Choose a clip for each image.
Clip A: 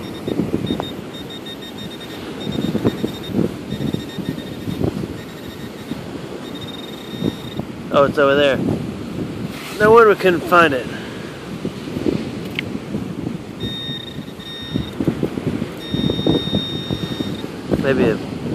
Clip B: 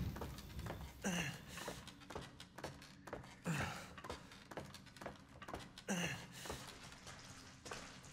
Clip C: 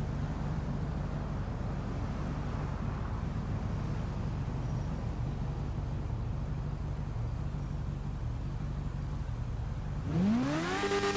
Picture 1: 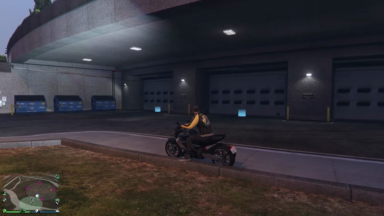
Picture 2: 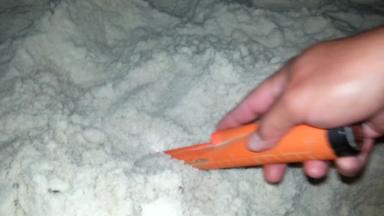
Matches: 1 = C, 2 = A